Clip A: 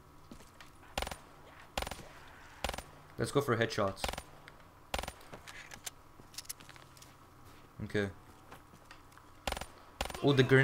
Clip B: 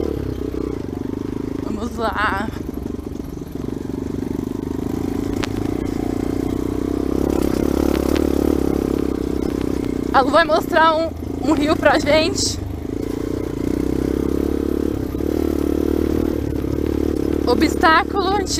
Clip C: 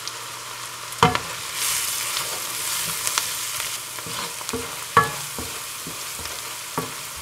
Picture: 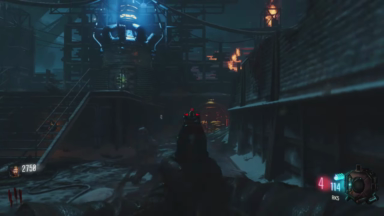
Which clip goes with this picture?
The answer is A